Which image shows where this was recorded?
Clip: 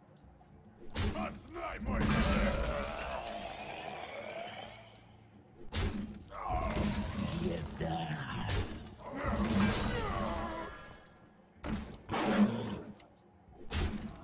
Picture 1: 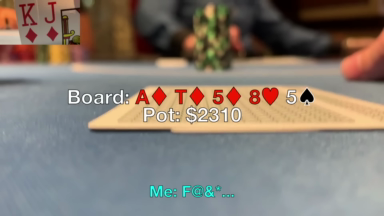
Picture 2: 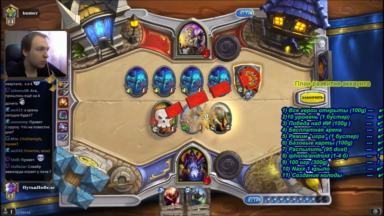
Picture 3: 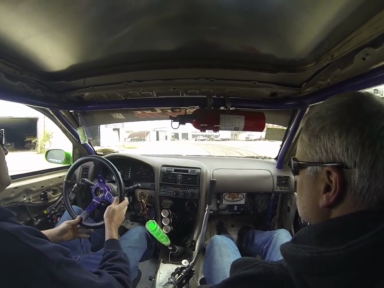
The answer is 2